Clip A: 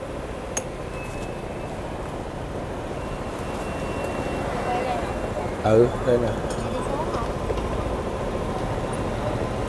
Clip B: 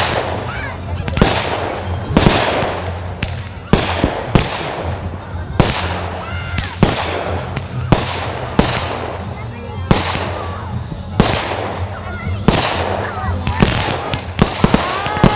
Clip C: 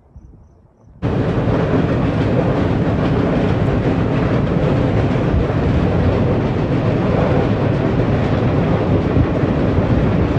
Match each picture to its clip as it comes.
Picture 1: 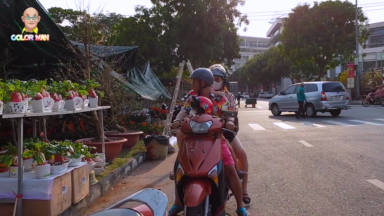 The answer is A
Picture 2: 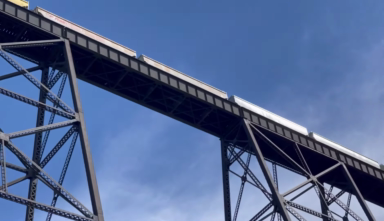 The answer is C